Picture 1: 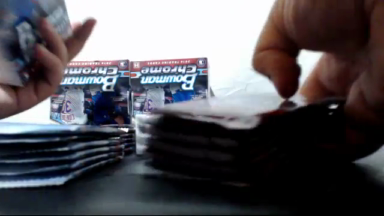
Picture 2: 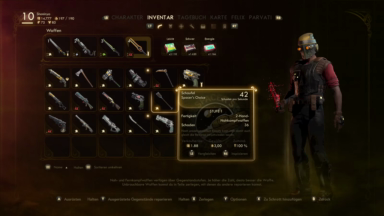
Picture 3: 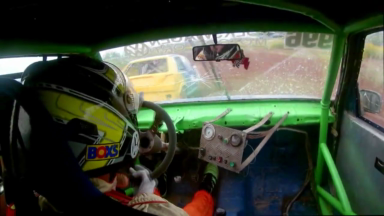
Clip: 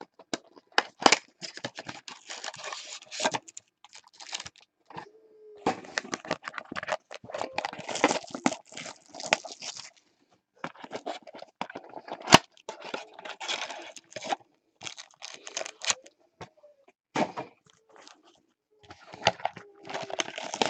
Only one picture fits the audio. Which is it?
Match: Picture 1